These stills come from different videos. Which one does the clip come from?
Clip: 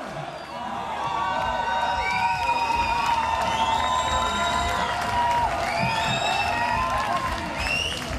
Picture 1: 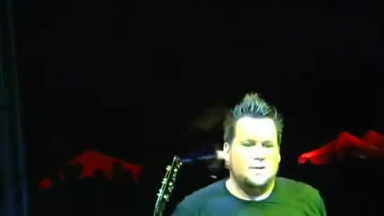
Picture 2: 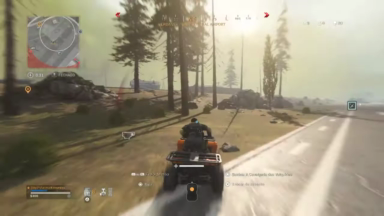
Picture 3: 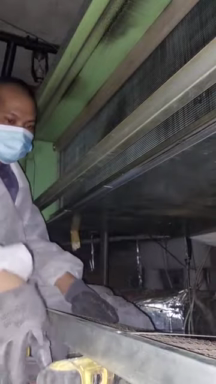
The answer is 1